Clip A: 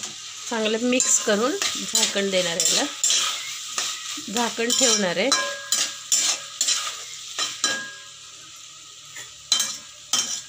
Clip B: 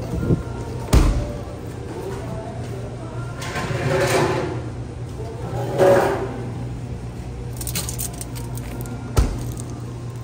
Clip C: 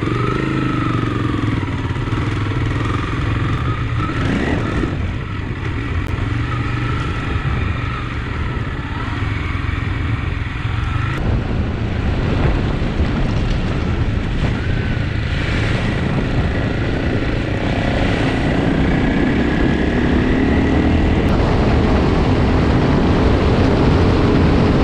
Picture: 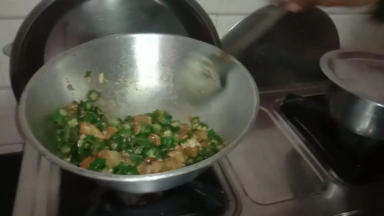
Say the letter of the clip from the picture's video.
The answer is A